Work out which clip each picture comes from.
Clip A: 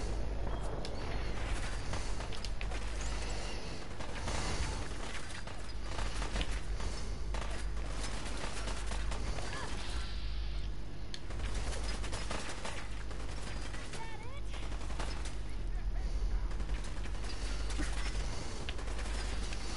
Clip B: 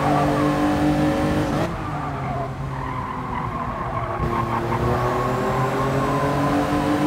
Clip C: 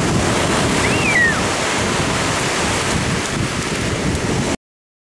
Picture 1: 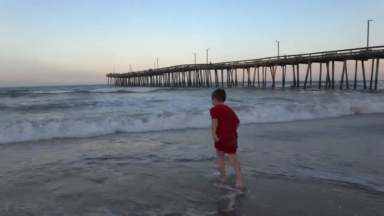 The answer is C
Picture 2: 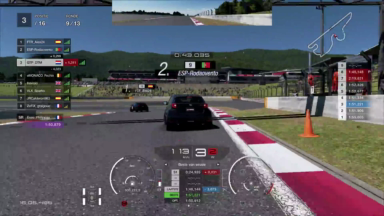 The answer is B